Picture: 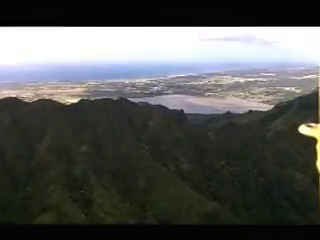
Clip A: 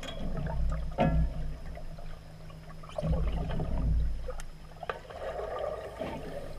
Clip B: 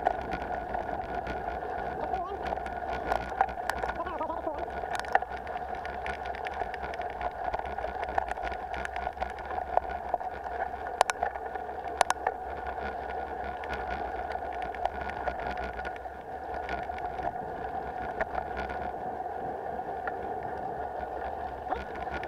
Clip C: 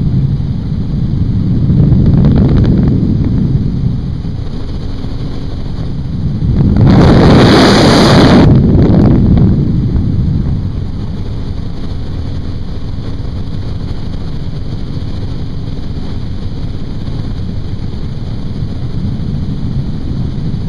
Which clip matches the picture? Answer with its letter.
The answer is C